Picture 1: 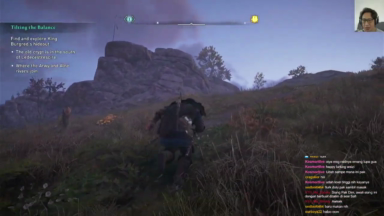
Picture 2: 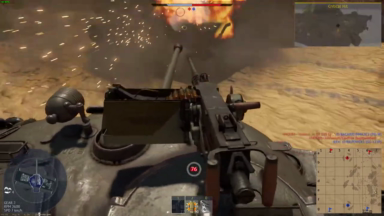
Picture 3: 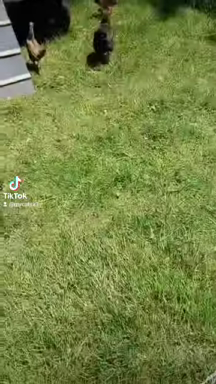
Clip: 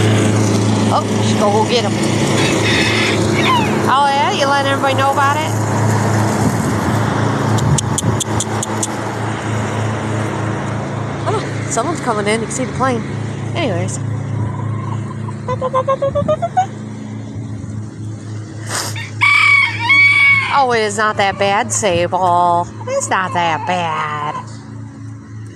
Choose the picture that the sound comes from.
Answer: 3